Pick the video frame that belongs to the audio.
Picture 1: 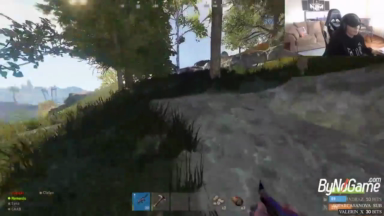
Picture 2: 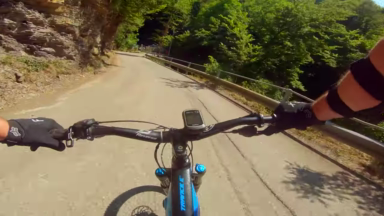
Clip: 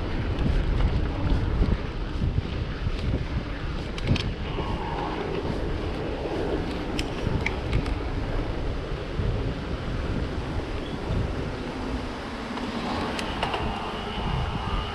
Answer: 2